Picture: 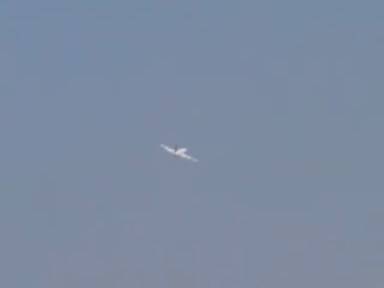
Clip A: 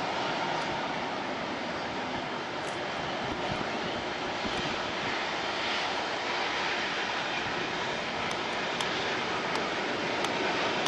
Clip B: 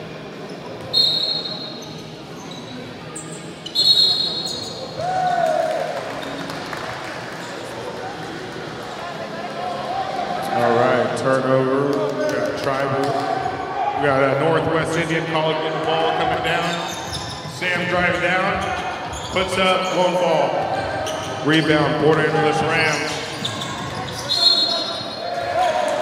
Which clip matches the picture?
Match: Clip A